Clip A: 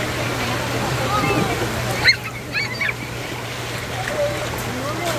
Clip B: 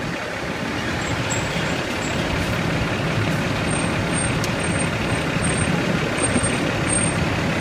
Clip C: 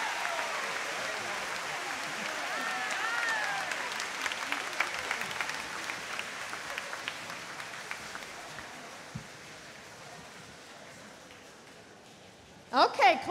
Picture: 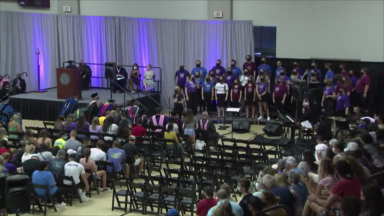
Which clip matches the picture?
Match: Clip C